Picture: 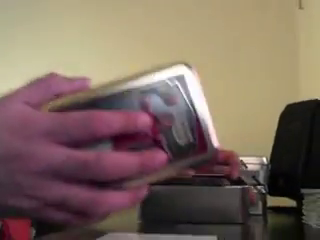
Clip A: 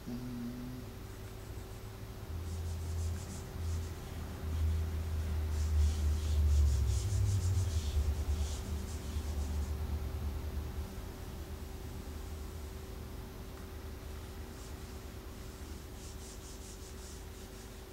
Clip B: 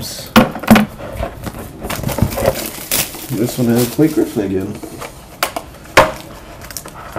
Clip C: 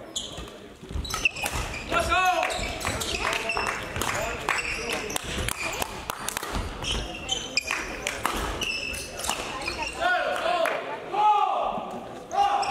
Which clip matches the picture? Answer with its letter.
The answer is B